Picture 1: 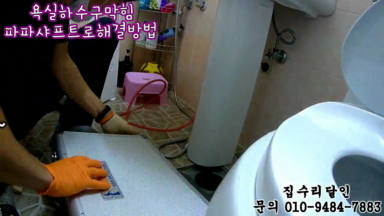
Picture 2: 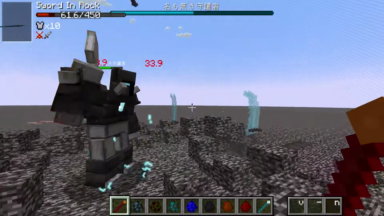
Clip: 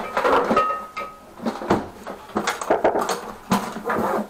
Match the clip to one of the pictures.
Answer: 1